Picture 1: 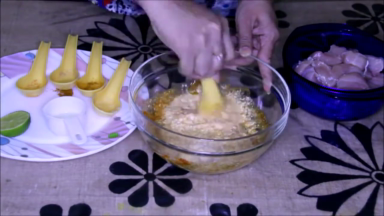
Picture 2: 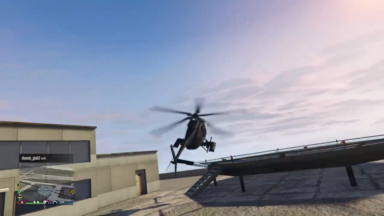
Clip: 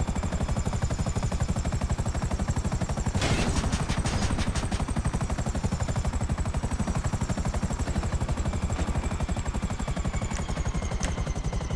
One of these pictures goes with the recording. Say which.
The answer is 2